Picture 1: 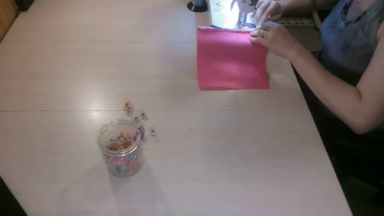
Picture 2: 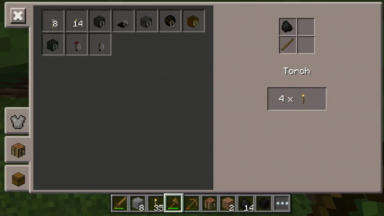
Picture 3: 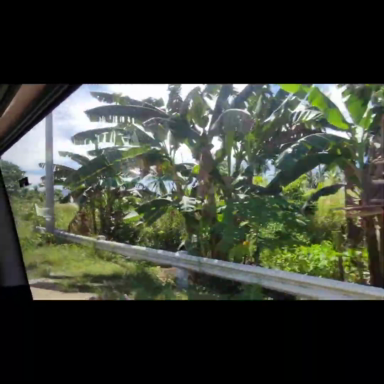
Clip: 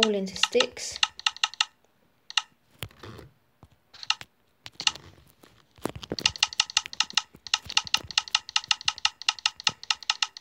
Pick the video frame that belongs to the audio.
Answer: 2